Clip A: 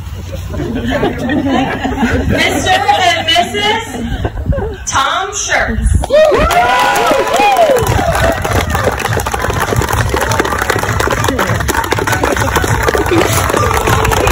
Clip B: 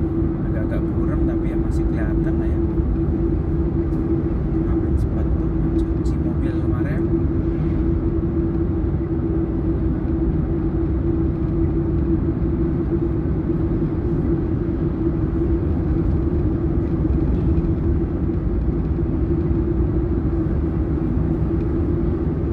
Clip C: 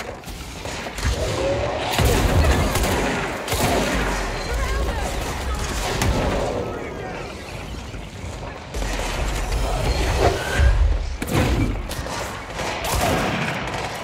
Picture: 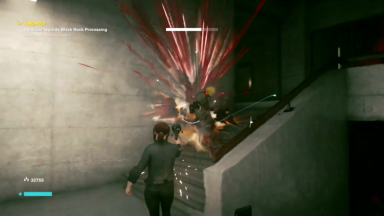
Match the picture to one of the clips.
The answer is C